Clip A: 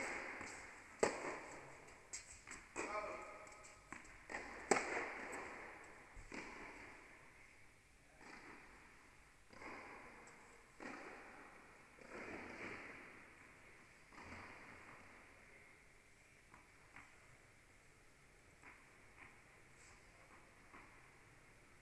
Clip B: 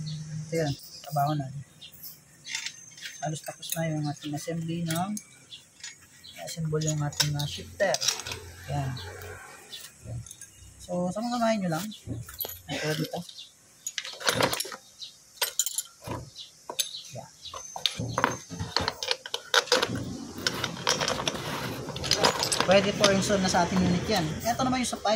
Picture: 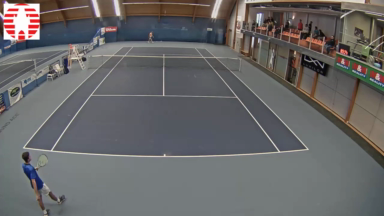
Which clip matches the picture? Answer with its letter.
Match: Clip A